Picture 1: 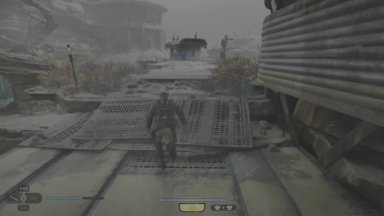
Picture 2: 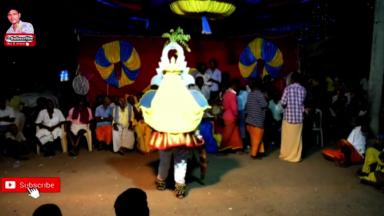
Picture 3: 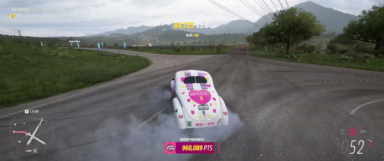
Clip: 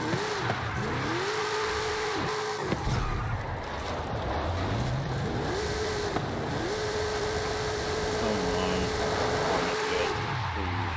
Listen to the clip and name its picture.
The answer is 3